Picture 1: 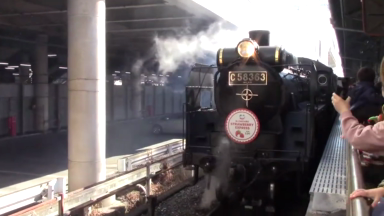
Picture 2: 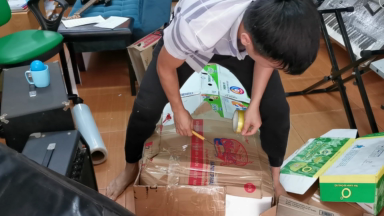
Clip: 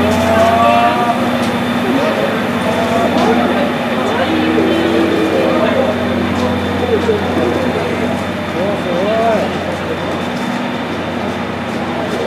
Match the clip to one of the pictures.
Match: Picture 1